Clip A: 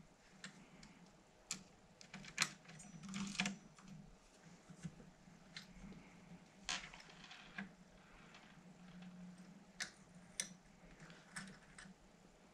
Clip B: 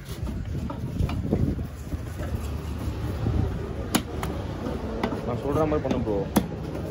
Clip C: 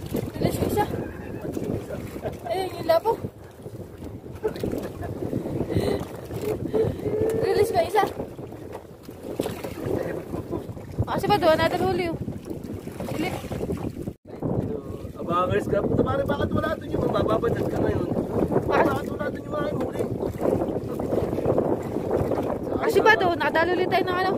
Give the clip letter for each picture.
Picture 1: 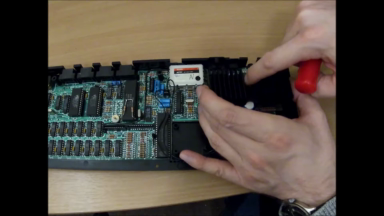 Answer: A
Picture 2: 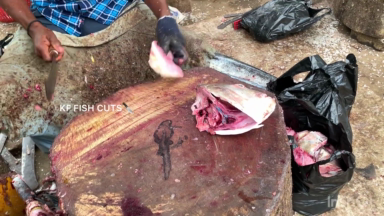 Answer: B